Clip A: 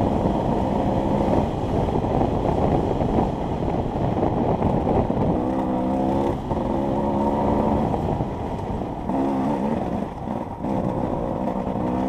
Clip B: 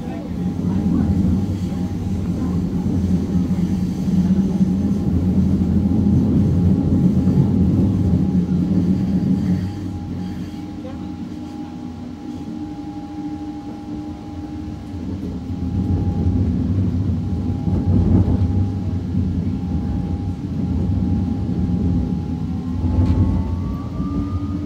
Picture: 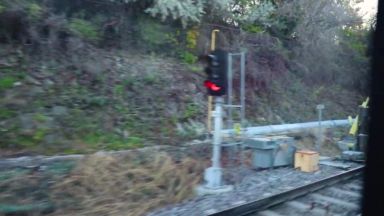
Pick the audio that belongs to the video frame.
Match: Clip B